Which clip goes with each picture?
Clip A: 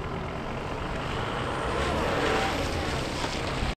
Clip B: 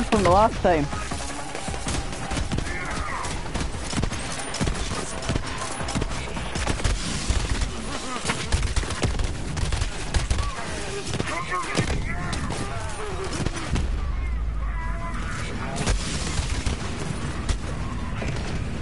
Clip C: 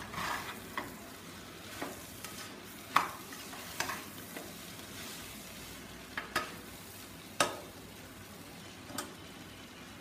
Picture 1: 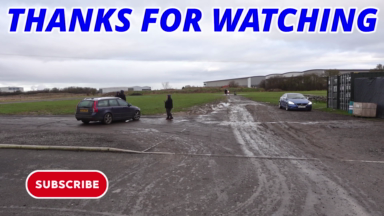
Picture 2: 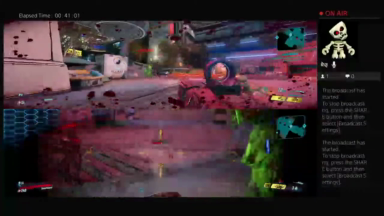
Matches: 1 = A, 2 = B